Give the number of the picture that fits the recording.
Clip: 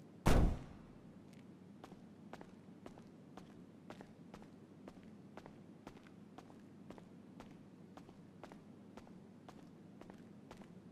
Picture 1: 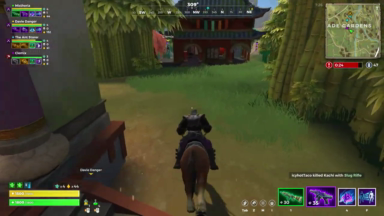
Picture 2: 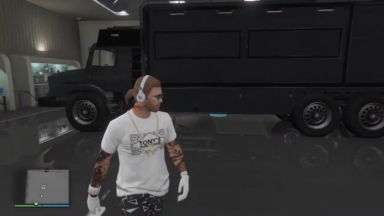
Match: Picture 2